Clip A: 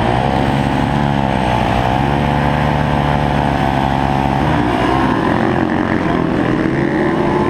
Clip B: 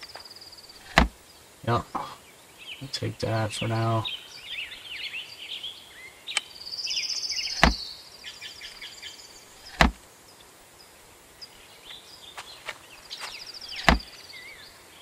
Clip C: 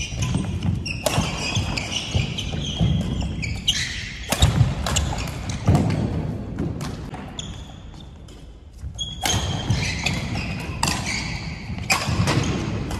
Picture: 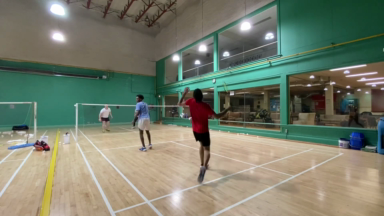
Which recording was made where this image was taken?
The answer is C